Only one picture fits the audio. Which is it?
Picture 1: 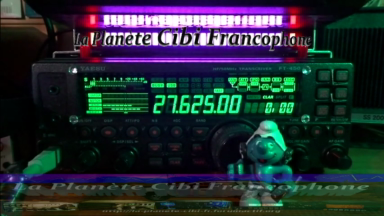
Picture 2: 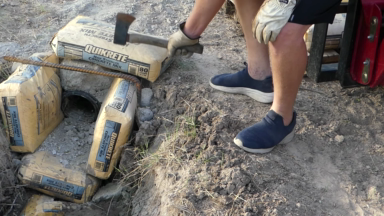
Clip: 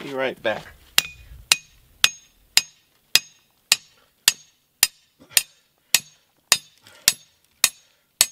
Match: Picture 2